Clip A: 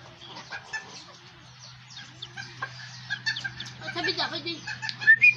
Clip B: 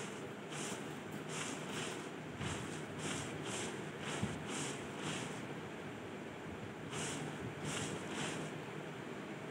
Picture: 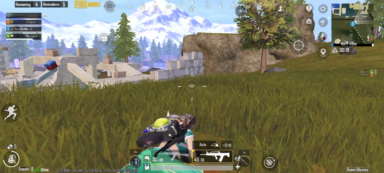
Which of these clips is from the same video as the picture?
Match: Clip B